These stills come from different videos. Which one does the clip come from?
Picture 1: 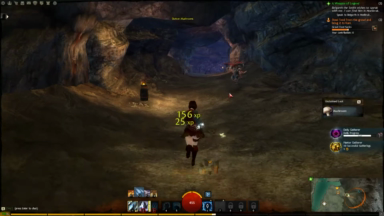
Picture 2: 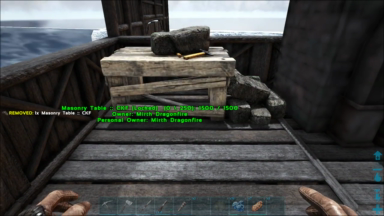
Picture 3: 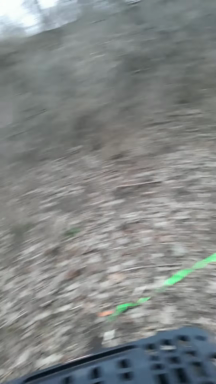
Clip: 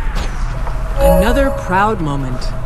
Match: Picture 1